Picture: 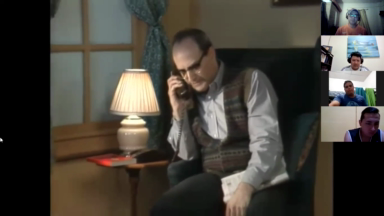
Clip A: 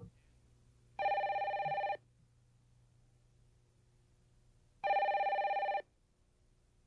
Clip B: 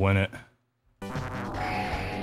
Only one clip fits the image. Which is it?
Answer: A